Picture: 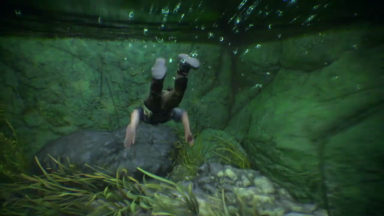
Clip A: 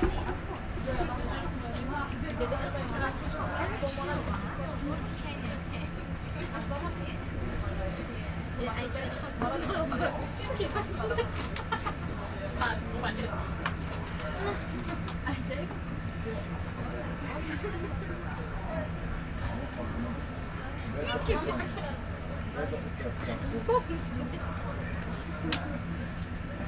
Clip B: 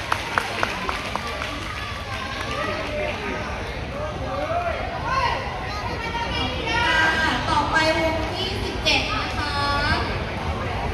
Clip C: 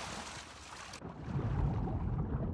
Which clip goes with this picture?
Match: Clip C